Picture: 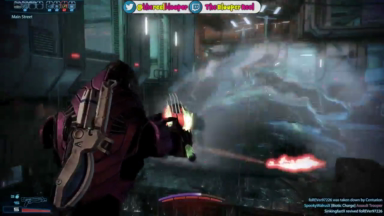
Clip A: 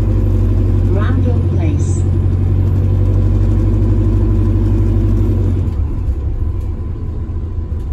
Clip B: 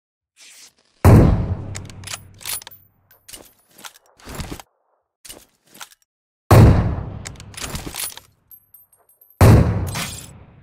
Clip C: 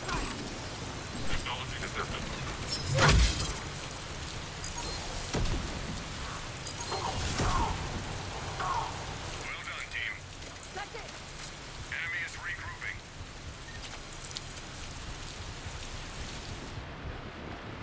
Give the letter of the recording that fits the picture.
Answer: C